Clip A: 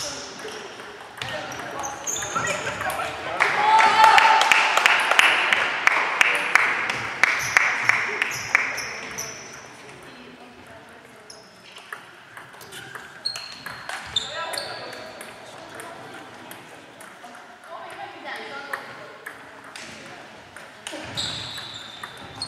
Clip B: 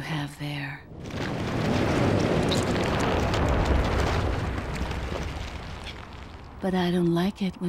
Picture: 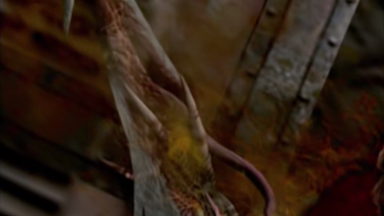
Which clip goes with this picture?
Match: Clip B